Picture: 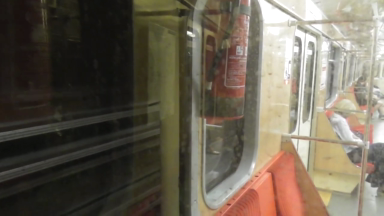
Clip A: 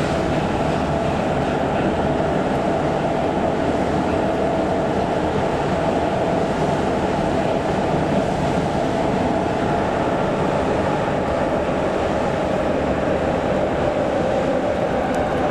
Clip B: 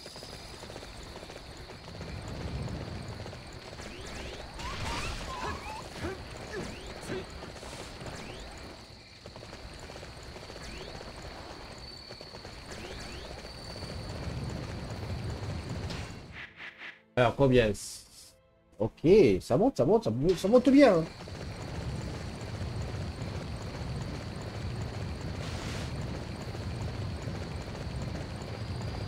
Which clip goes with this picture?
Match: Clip A